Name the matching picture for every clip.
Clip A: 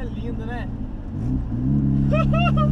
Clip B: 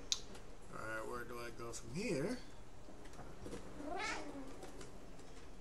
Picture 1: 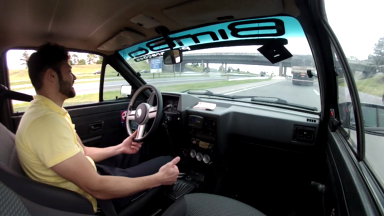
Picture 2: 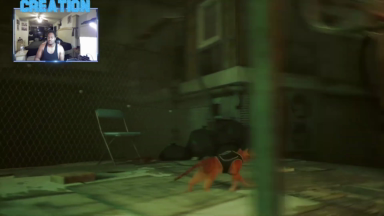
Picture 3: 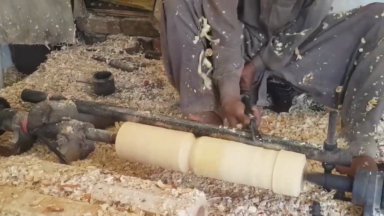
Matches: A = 1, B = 2